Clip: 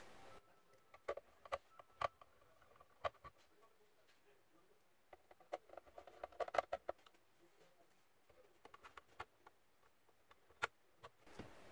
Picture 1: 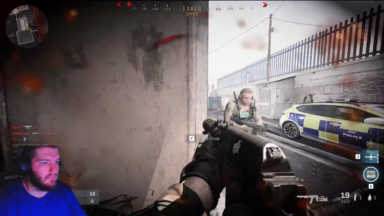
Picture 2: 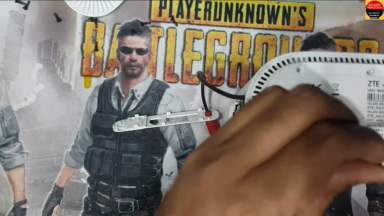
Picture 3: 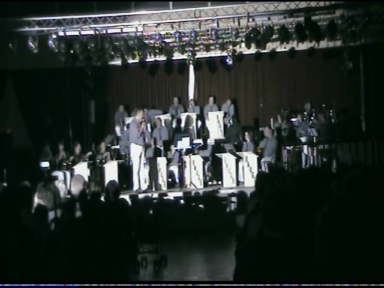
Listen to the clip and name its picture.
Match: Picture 2